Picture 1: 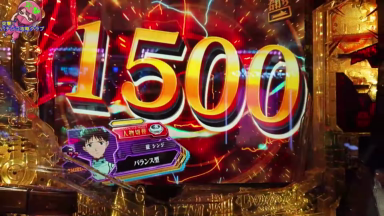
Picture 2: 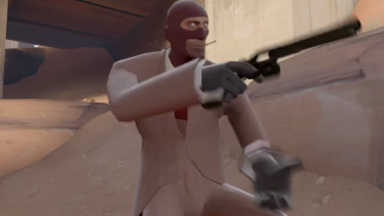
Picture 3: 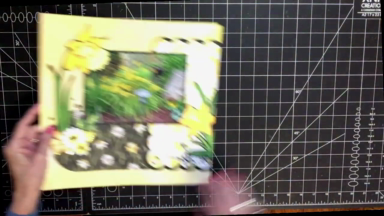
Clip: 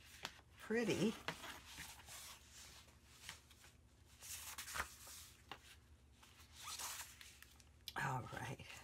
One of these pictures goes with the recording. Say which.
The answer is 3